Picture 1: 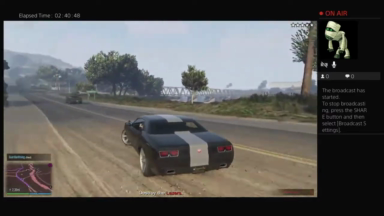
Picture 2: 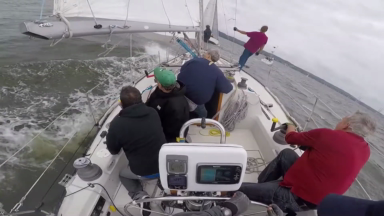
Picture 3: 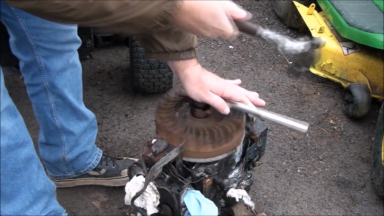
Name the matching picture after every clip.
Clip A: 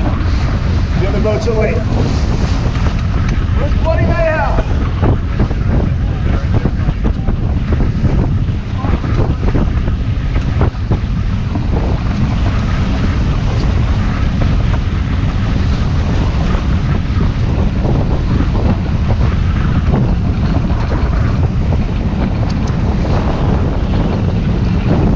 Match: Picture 2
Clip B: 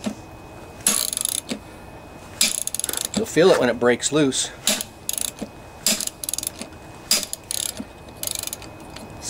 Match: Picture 3